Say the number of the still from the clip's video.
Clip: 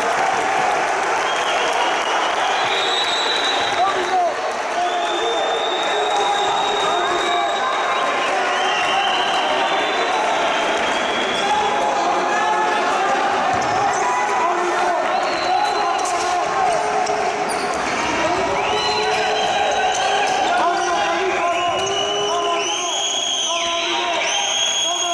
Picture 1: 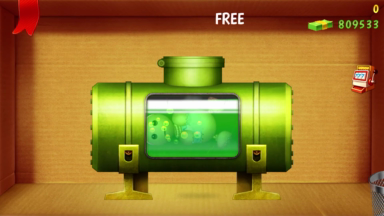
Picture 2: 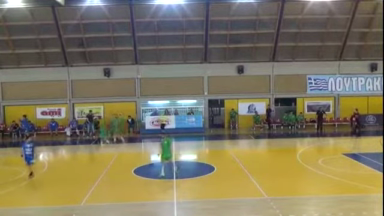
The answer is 2